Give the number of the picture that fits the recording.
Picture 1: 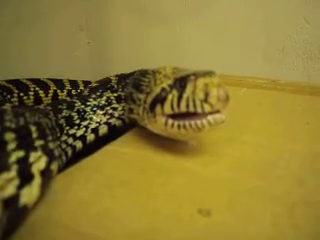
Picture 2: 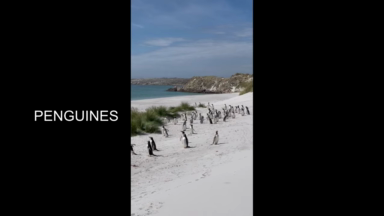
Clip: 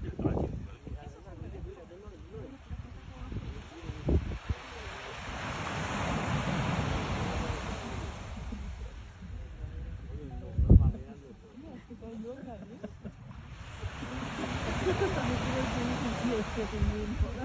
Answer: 2